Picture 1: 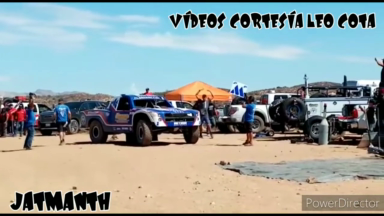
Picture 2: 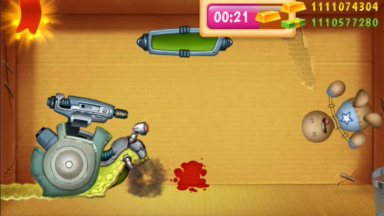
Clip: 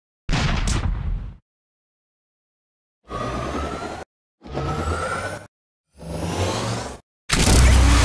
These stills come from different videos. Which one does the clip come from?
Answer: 2